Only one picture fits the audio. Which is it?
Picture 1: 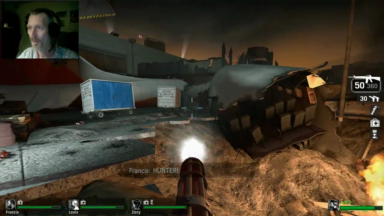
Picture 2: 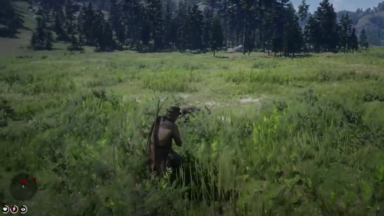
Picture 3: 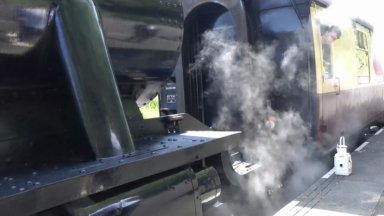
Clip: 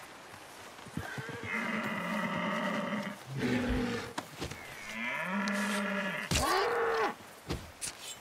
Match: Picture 2